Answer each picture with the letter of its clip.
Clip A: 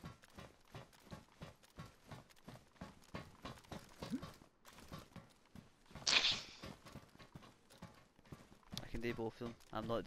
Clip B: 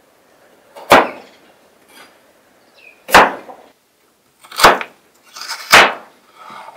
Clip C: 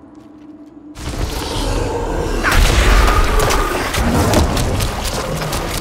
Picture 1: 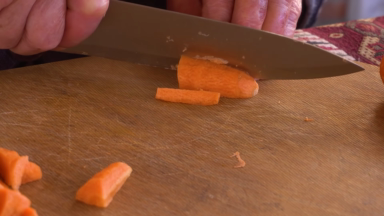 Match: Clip B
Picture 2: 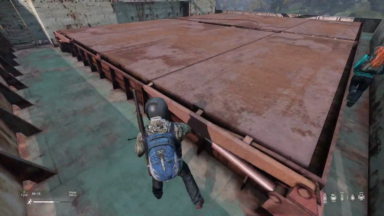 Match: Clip A